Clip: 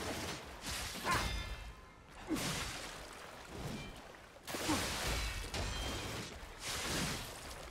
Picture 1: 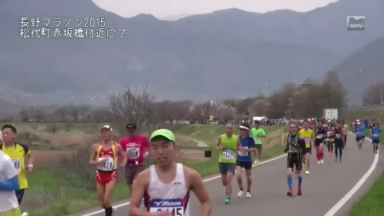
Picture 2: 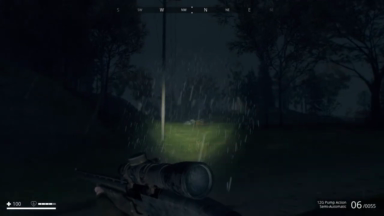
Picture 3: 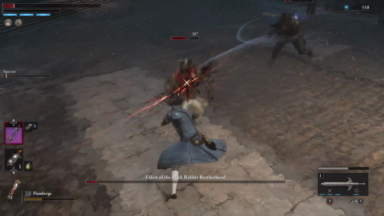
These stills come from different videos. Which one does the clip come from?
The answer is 3